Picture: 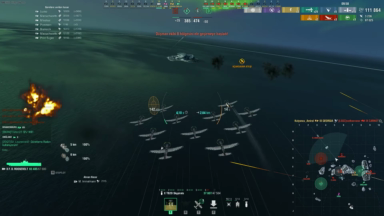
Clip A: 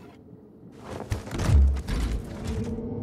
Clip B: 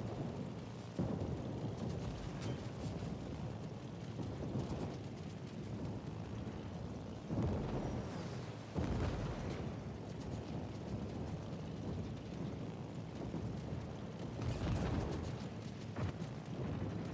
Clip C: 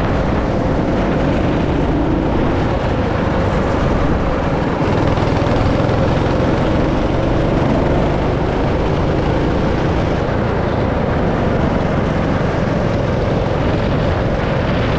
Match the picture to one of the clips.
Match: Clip B